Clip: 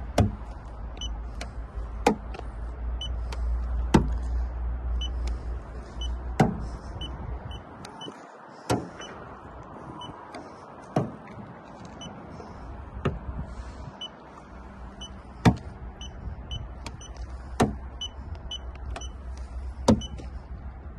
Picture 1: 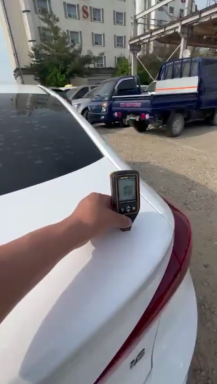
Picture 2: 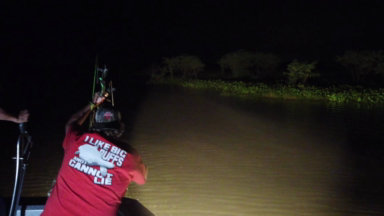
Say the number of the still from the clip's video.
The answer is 1